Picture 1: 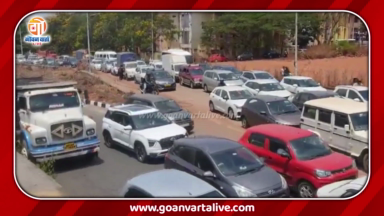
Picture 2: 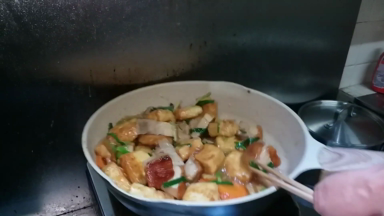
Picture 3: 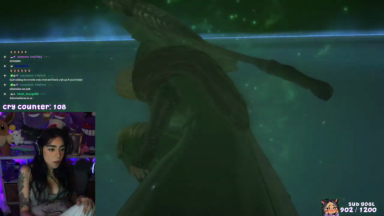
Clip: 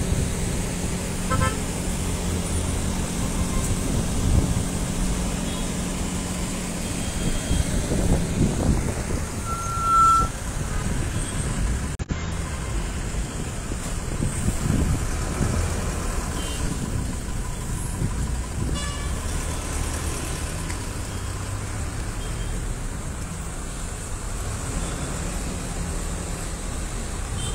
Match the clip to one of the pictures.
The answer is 1